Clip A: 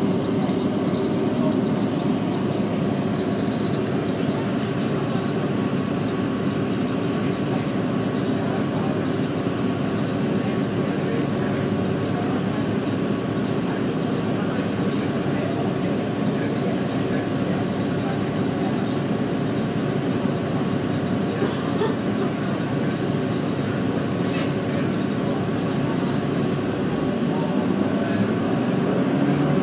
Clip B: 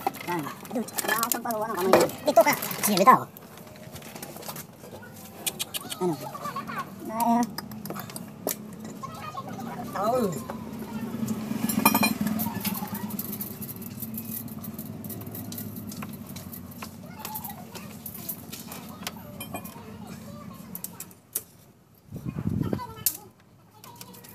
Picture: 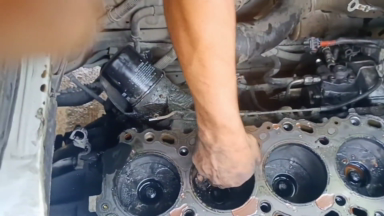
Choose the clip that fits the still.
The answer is B